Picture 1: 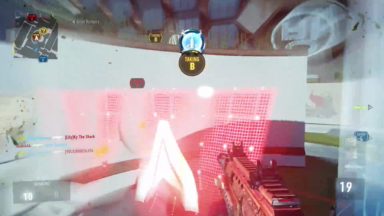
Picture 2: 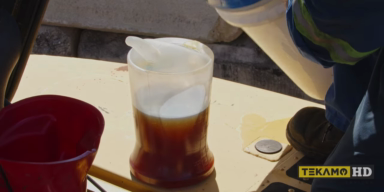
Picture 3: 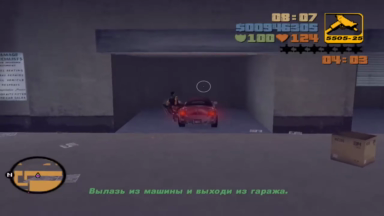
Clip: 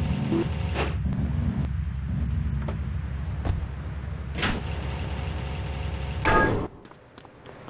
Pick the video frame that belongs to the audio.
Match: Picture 3